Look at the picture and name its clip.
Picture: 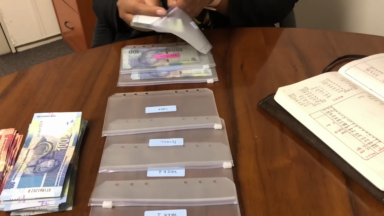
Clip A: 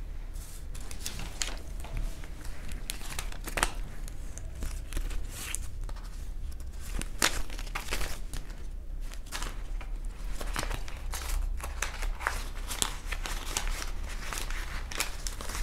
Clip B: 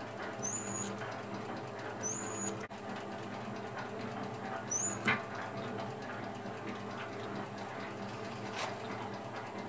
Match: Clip A